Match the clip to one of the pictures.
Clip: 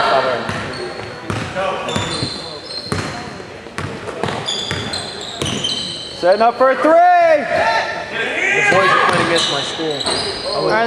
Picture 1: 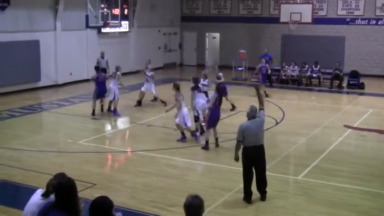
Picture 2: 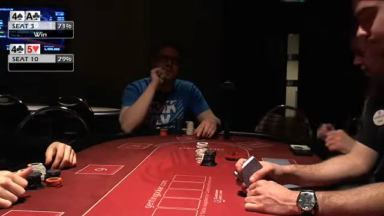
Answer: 1